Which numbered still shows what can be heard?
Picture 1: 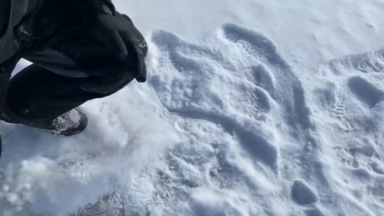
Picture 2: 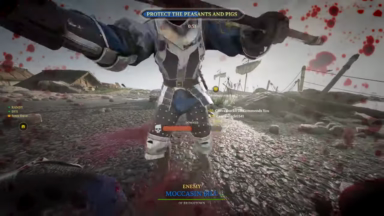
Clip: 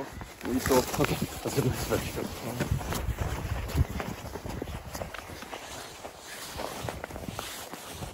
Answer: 1